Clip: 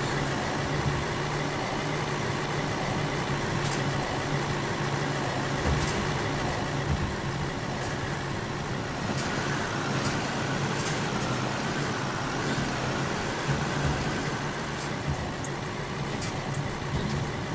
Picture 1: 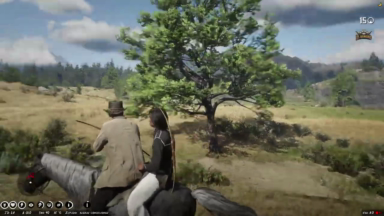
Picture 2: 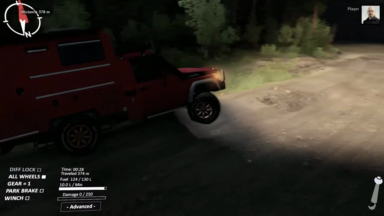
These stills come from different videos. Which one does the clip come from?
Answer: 2